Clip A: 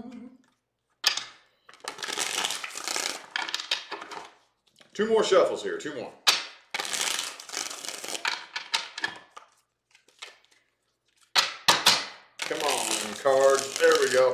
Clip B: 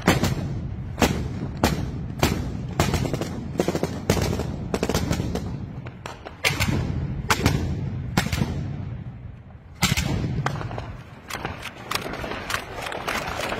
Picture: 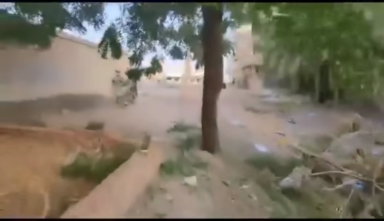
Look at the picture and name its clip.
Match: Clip B